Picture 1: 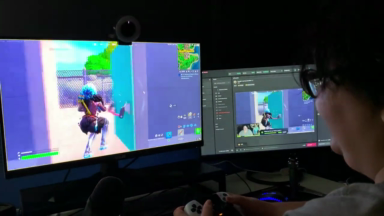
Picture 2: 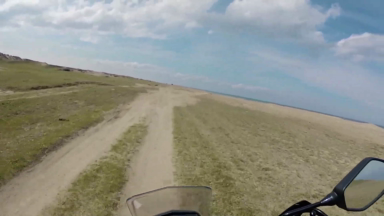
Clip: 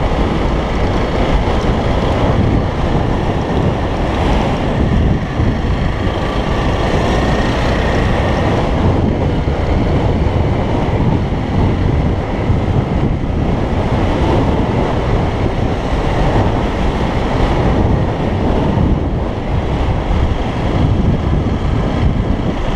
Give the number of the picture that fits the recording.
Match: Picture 2